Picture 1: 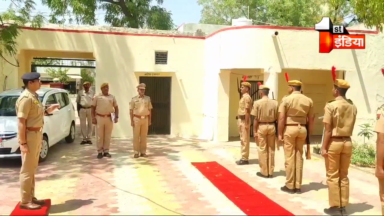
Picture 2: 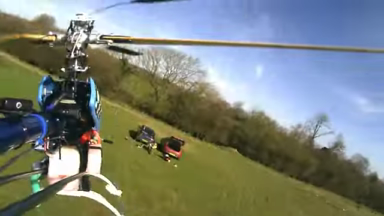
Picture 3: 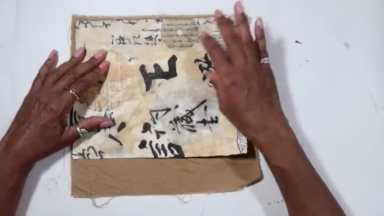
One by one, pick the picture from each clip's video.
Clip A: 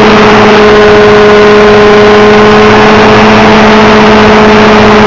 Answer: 2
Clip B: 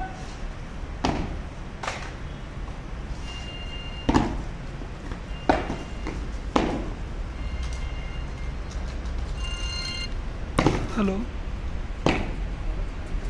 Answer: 1